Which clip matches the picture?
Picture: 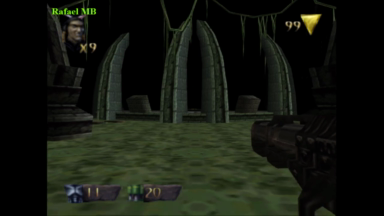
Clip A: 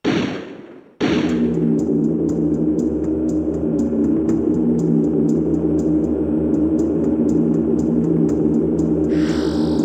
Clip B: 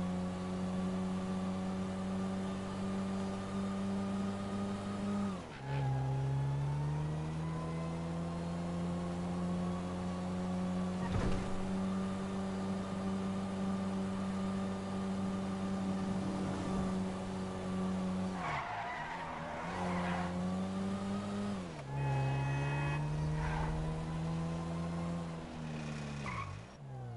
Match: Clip A